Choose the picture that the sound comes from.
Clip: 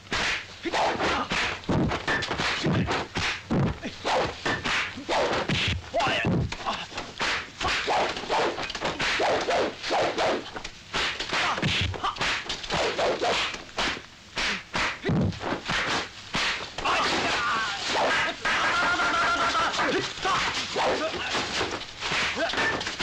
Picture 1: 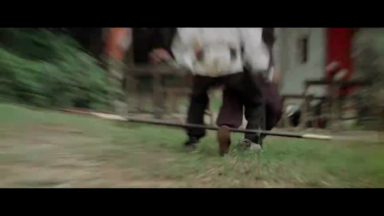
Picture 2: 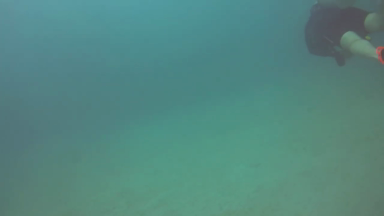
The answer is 1